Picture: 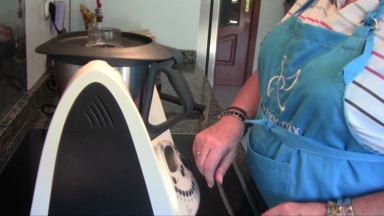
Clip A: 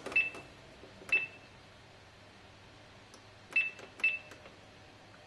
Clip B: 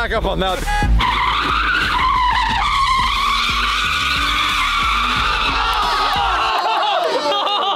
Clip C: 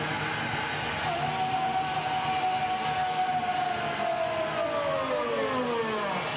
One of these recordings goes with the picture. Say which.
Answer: A